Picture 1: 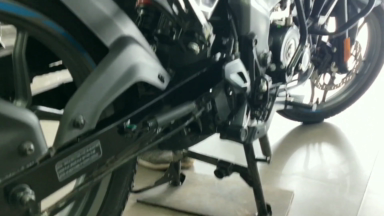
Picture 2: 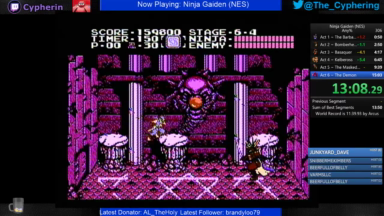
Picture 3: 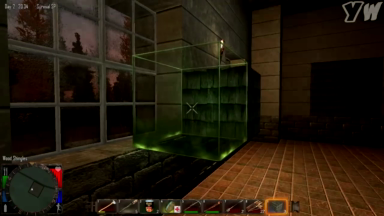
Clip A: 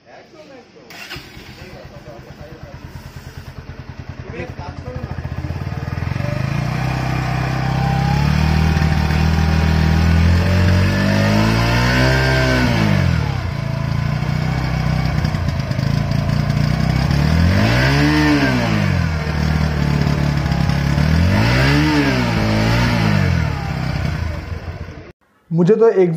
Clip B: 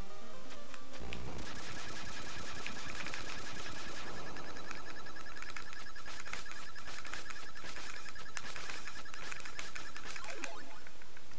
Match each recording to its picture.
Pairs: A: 1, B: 2